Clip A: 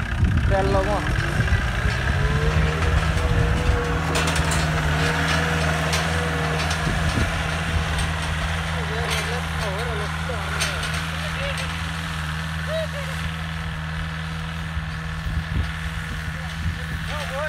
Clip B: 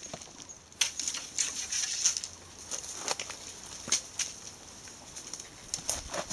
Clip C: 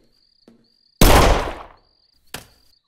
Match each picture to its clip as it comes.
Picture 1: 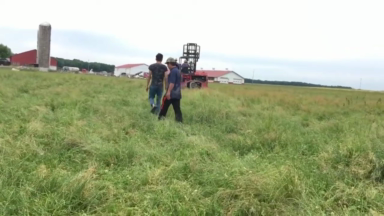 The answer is A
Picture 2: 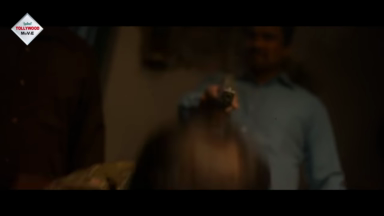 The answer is C